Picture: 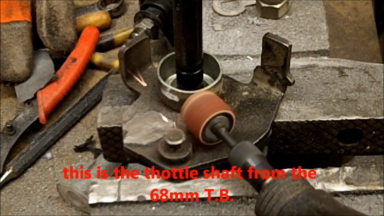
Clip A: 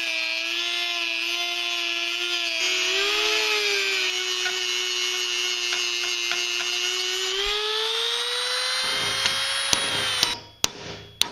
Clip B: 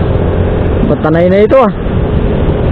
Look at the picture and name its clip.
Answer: A